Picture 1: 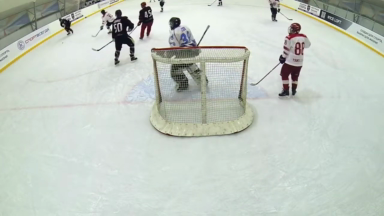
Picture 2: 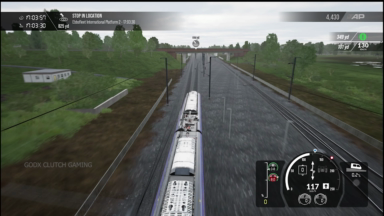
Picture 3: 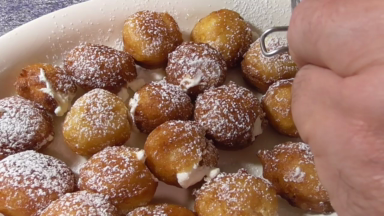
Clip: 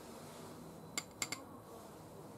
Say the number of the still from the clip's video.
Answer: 3